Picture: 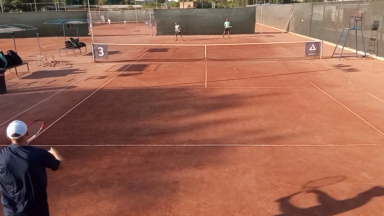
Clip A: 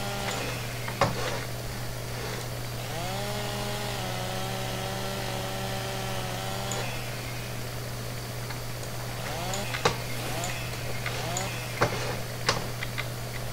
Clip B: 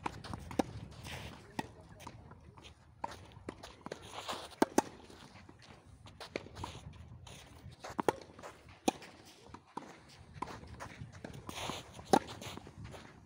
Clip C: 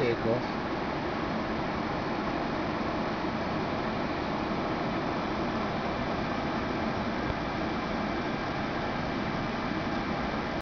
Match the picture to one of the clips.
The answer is B